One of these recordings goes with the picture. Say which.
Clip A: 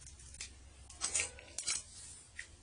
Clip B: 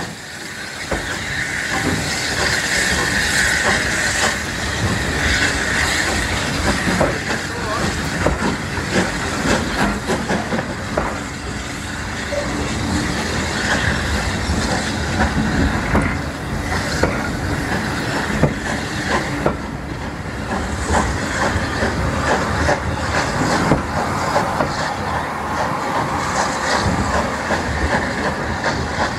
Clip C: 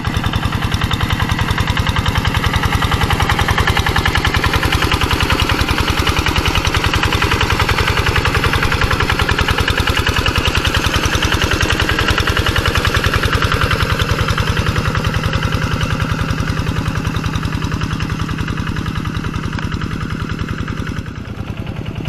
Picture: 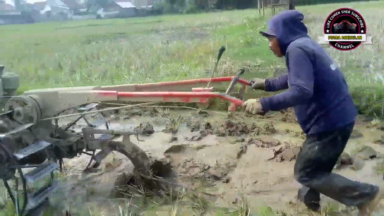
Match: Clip C